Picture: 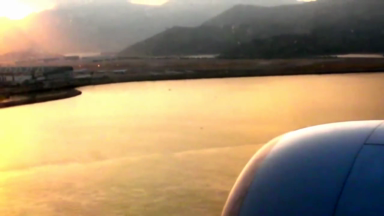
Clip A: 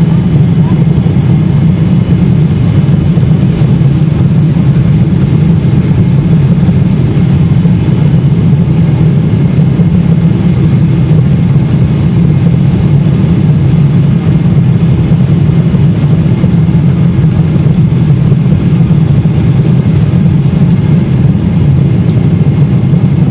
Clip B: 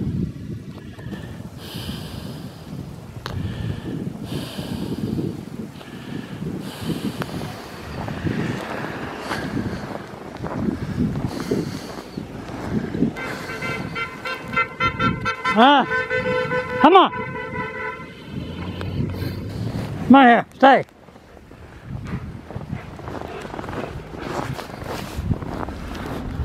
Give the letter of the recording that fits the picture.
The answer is A